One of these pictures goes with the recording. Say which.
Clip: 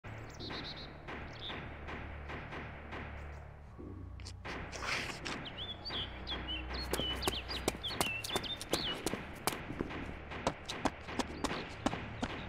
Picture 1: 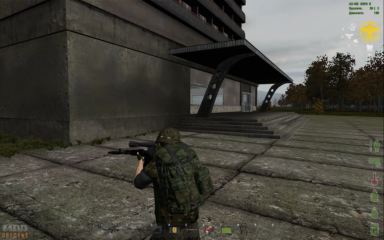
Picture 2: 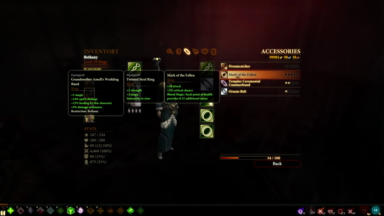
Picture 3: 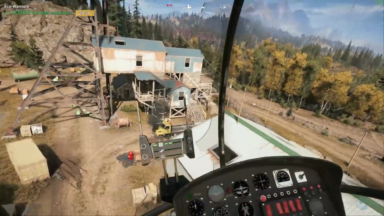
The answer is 1